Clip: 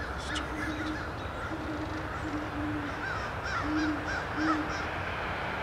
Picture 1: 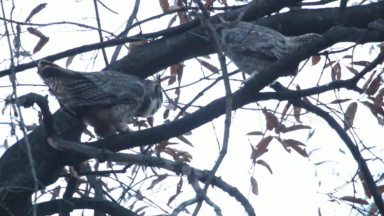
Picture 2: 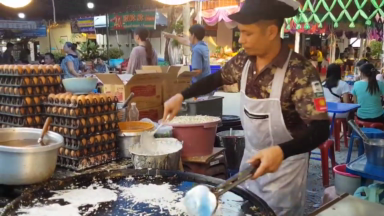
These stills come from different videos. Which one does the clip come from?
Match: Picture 1